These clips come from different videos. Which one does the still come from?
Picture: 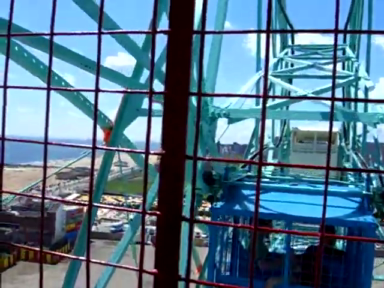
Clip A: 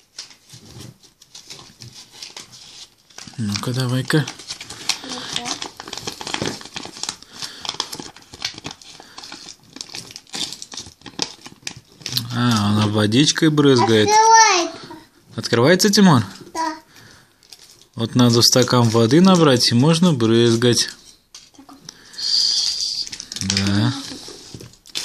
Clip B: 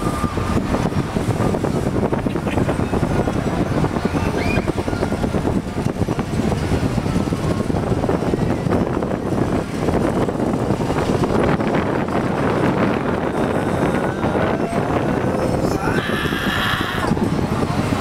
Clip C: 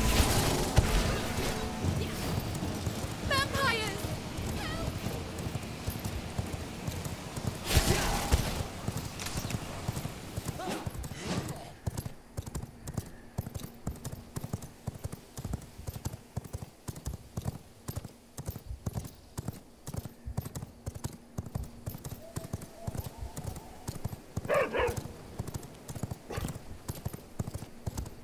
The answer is B